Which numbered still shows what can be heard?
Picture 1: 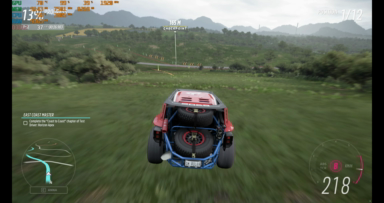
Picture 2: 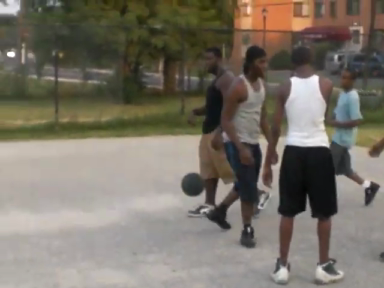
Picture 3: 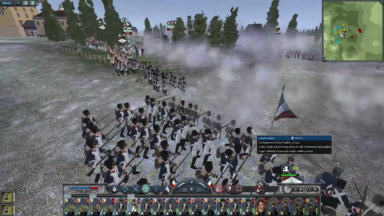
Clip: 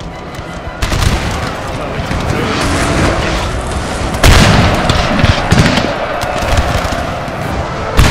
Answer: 3